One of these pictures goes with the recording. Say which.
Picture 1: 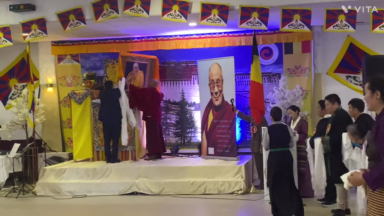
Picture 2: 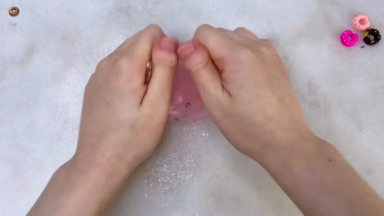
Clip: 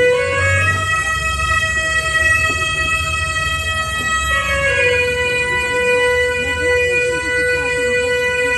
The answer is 1